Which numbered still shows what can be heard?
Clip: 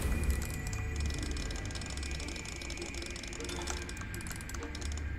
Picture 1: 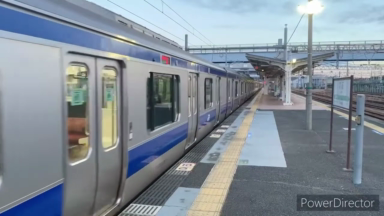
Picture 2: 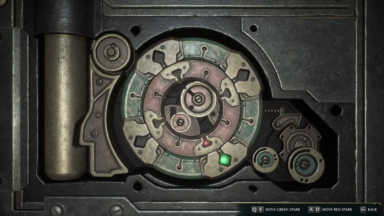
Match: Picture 2